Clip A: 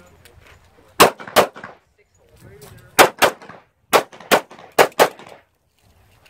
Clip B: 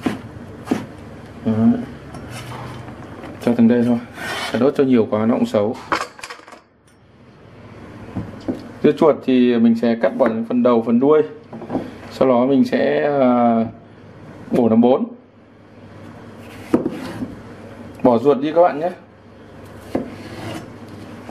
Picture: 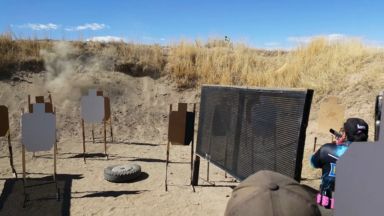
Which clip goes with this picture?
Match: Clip A